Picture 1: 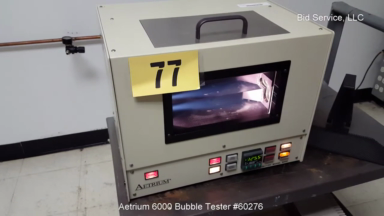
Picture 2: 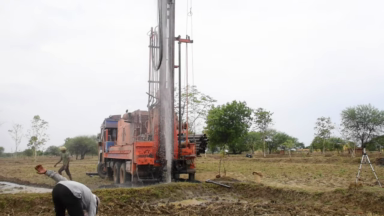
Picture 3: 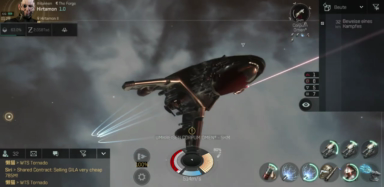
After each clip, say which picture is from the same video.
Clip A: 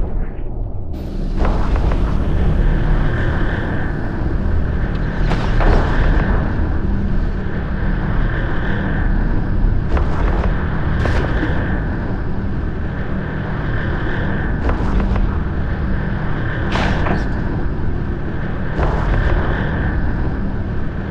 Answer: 3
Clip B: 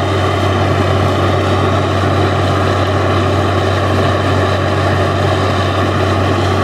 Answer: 2